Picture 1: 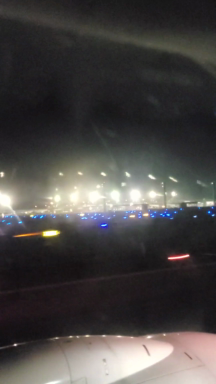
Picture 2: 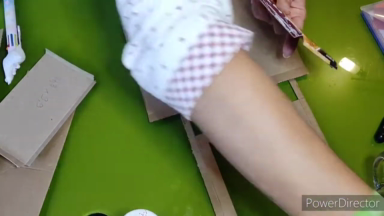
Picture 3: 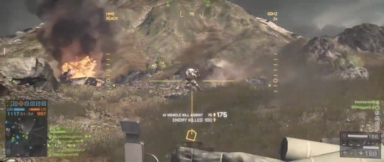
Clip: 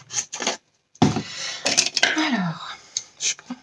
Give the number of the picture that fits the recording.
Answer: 2